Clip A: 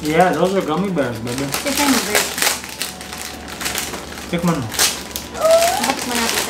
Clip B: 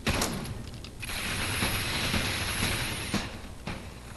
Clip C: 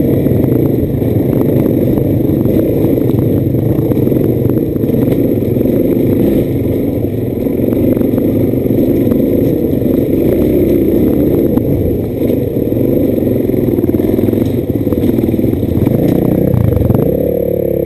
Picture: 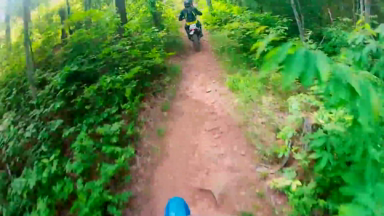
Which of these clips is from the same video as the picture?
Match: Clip C